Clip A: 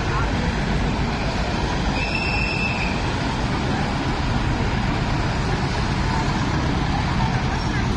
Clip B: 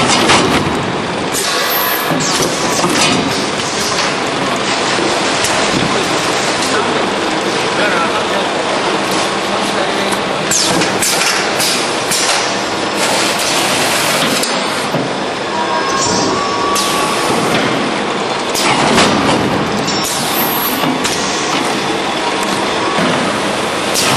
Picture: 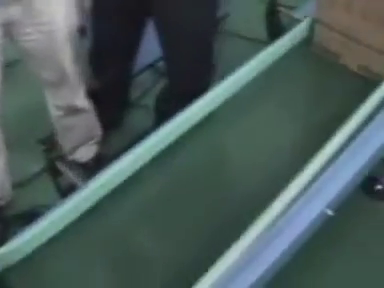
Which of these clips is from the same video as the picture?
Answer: B